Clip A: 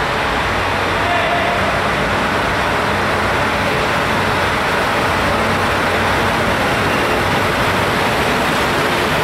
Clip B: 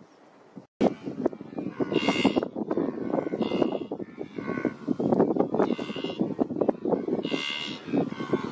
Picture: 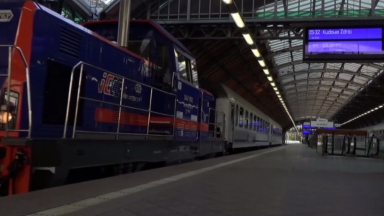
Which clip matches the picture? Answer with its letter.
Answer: A